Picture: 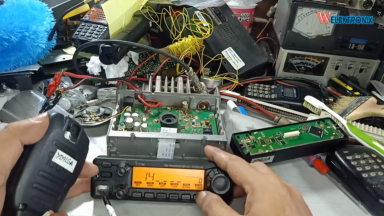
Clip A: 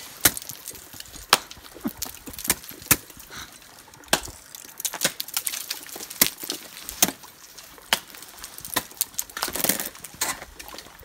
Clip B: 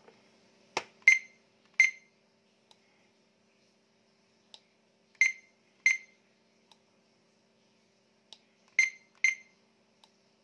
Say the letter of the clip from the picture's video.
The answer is B